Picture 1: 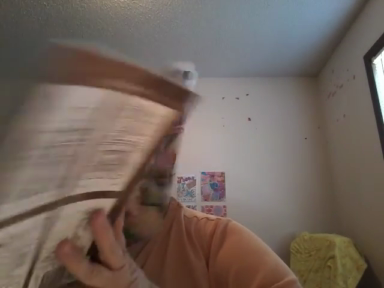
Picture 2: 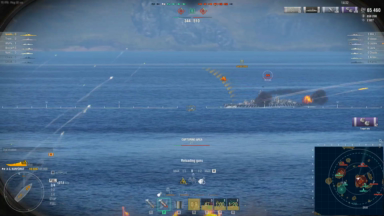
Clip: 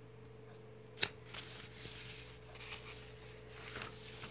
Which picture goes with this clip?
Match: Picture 1